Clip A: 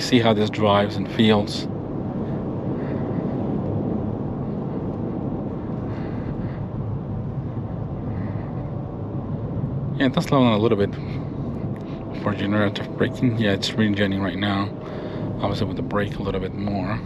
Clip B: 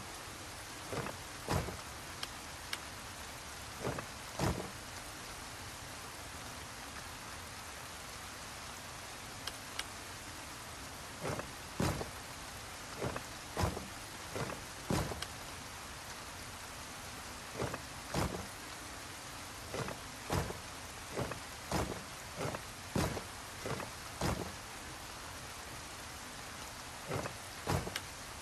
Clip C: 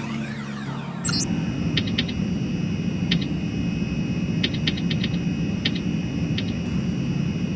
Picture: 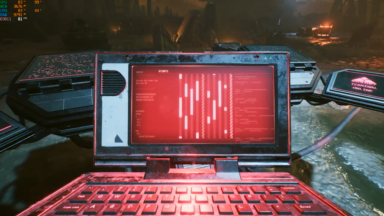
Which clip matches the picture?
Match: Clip C